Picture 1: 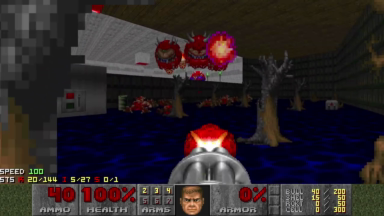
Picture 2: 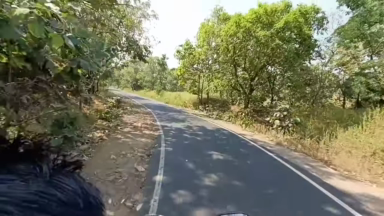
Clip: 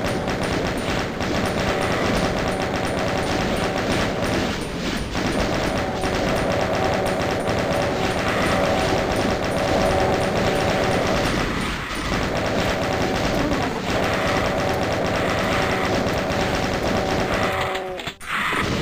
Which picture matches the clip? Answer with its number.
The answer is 1